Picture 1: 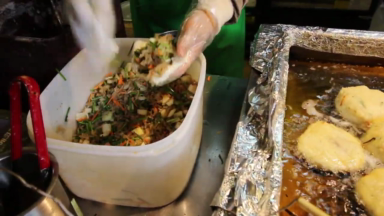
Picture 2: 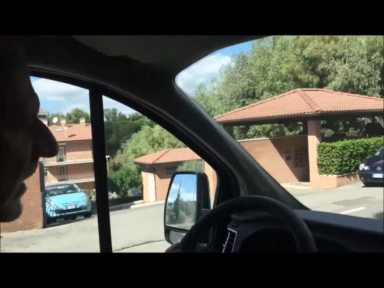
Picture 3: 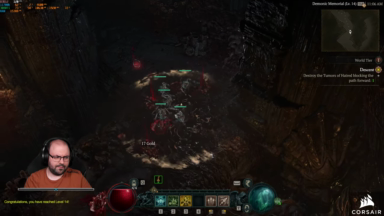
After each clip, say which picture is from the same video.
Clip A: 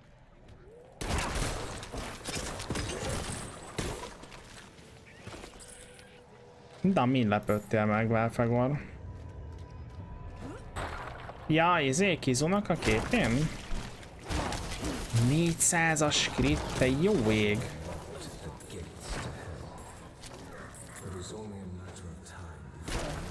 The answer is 3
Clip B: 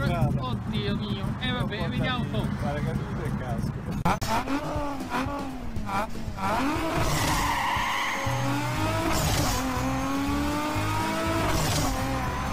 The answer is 2